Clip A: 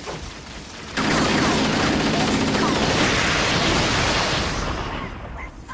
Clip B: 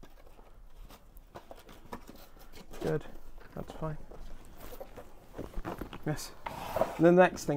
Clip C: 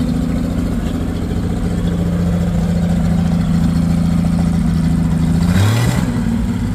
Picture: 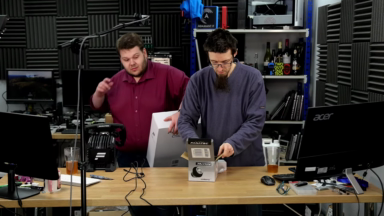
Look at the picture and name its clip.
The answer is B